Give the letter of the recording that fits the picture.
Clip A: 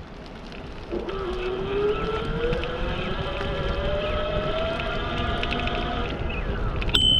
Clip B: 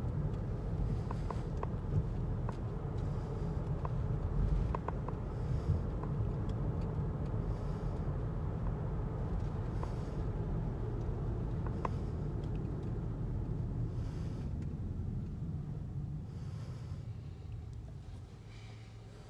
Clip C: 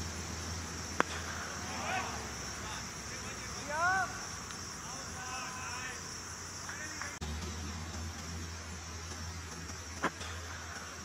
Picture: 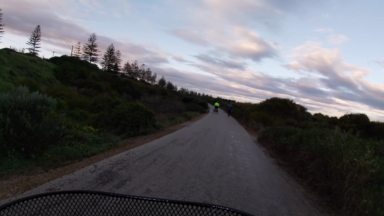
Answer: A